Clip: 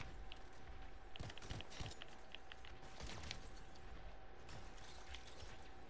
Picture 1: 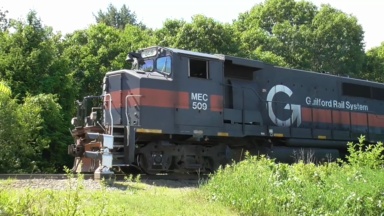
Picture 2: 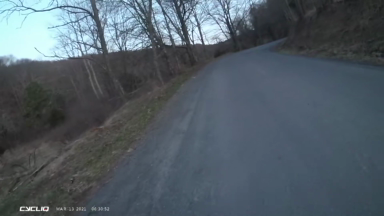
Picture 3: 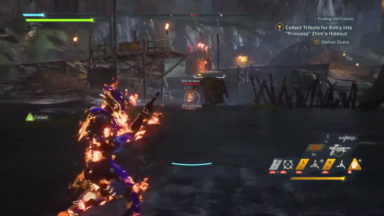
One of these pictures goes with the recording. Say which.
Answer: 3